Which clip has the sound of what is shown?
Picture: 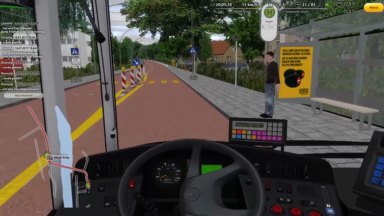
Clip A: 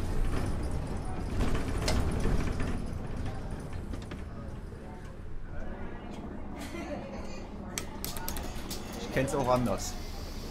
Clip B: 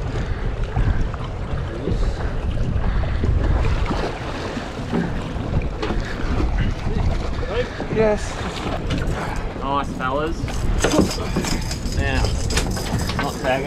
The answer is A